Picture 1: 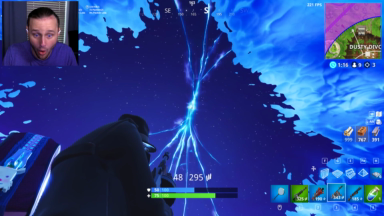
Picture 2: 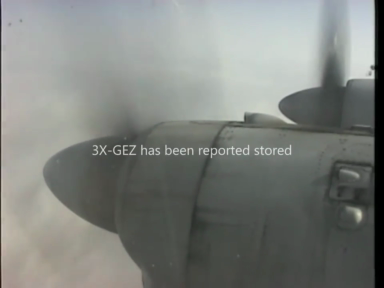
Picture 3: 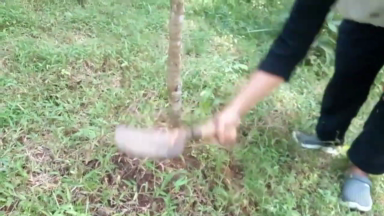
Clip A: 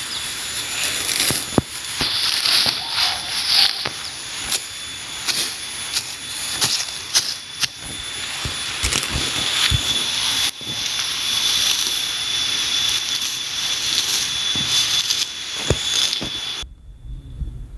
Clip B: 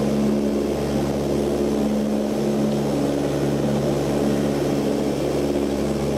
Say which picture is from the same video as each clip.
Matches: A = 3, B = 2